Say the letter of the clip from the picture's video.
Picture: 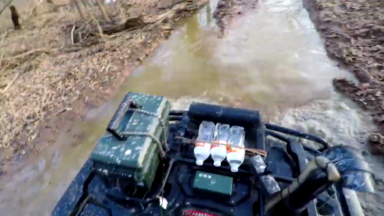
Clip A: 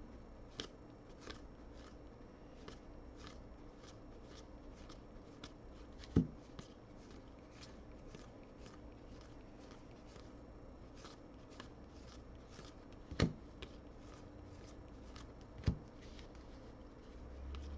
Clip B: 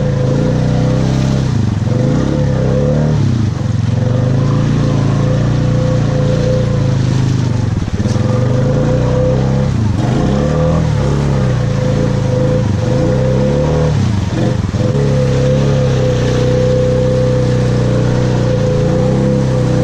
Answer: B